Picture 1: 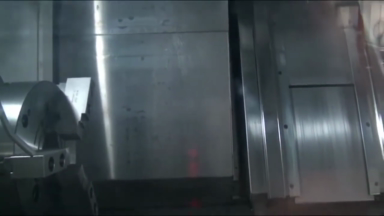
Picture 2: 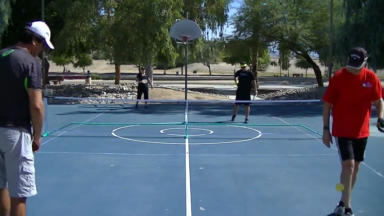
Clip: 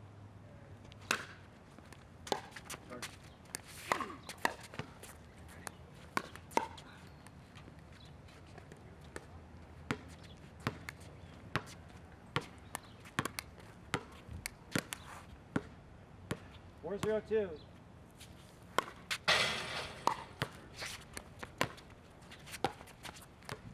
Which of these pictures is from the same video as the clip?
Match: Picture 2